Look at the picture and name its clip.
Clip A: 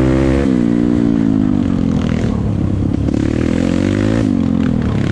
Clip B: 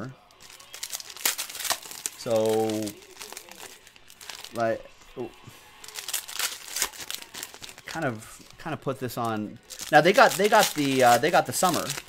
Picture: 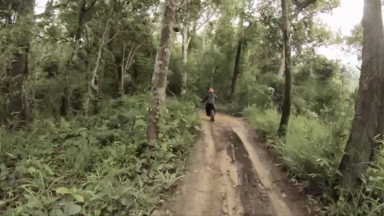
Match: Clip A